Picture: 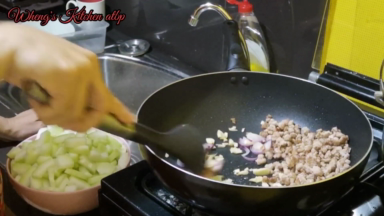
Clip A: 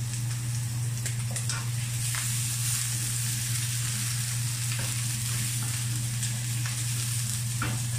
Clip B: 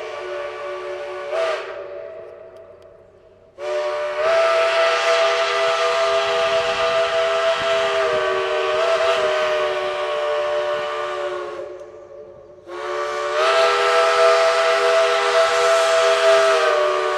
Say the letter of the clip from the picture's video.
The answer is A